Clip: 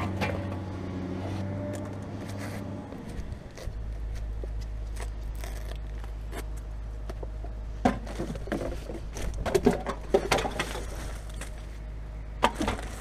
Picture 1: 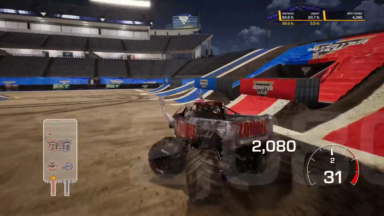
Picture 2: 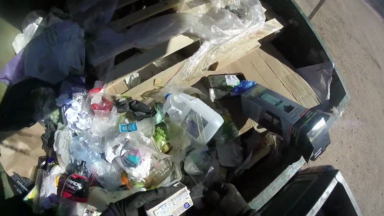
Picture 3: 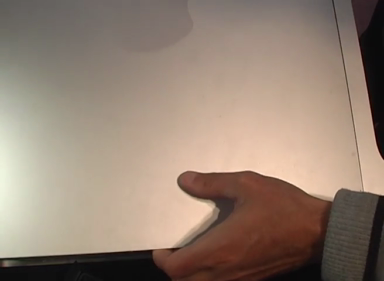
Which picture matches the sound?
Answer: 2